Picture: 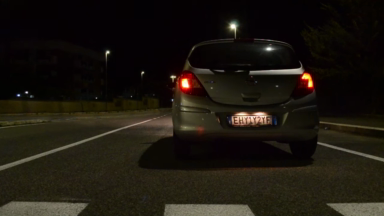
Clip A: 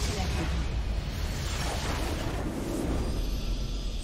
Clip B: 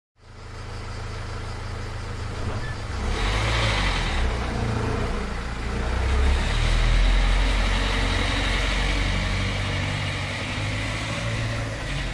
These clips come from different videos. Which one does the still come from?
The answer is B